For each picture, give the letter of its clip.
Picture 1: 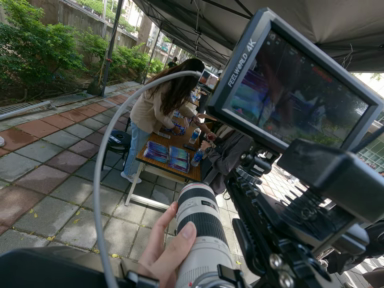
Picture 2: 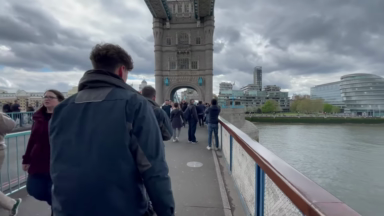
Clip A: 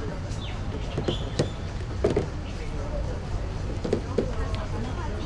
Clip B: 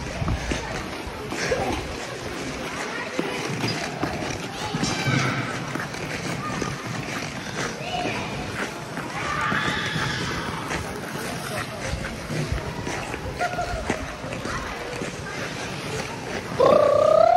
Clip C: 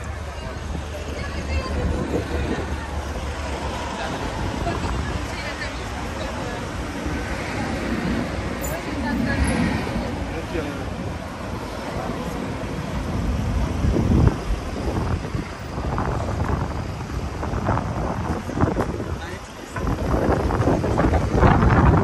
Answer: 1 A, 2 C